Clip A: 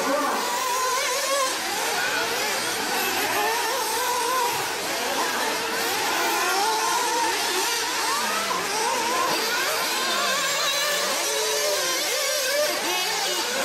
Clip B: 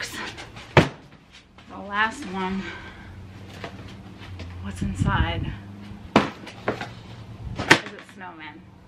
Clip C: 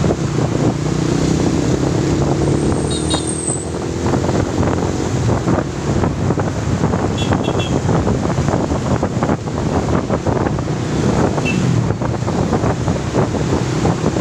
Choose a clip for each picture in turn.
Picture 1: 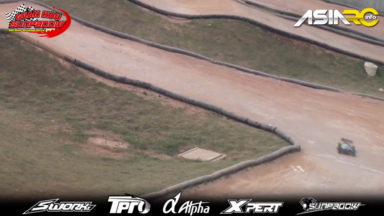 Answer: A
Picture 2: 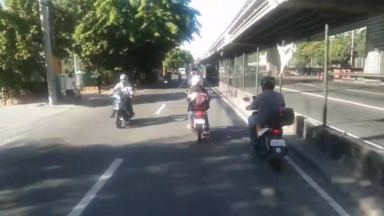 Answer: C